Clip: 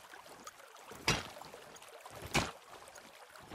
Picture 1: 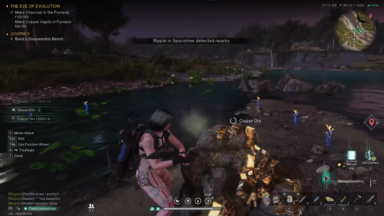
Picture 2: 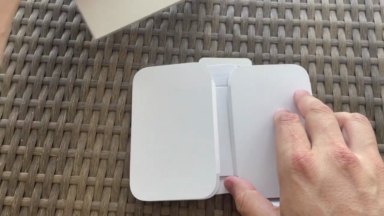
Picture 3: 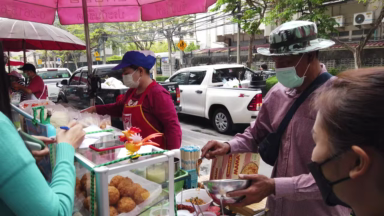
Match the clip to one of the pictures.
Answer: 1